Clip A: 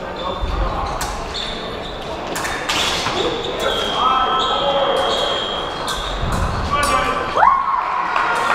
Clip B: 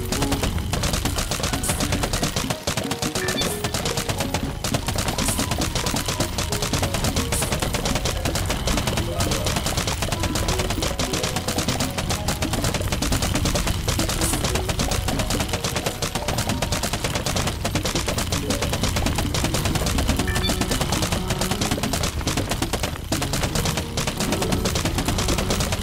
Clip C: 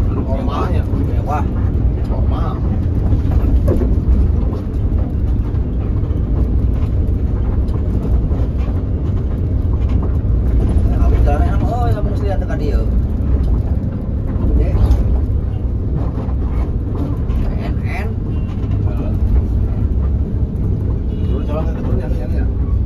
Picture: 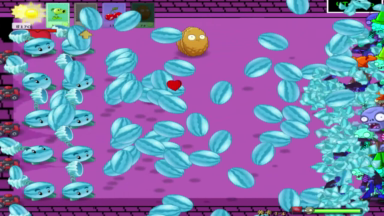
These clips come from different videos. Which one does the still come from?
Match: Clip B